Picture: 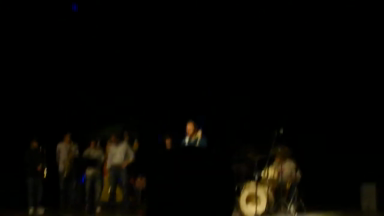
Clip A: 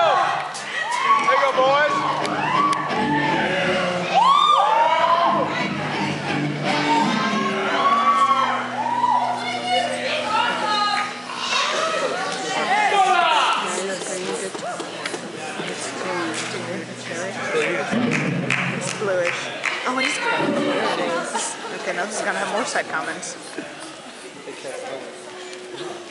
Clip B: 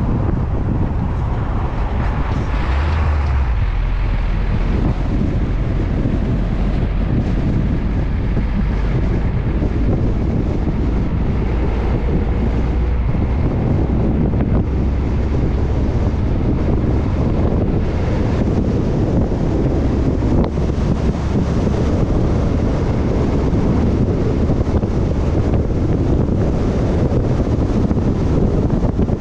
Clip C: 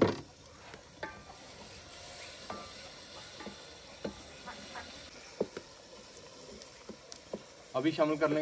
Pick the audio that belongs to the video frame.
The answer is A